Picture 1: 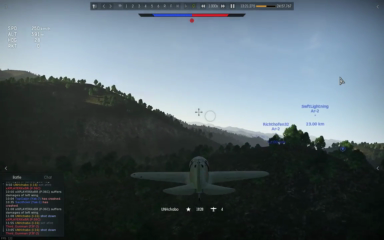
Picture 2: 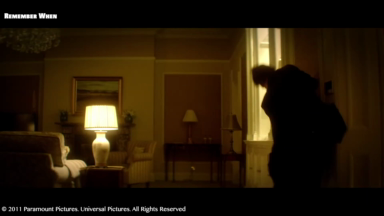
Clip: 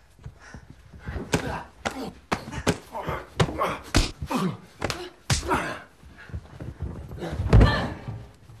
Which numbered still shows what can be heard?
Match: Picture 2